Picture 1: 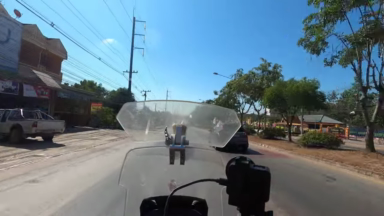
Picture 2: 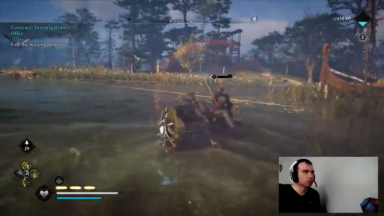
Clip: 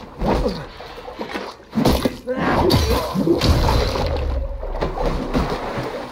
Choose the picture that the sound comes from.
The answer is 2